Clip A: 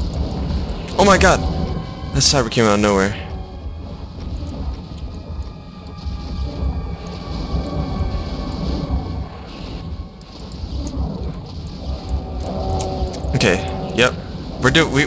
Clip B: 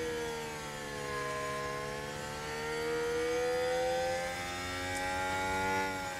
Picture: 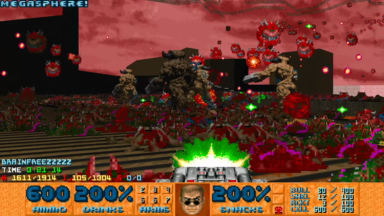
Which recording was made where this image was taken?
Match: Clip A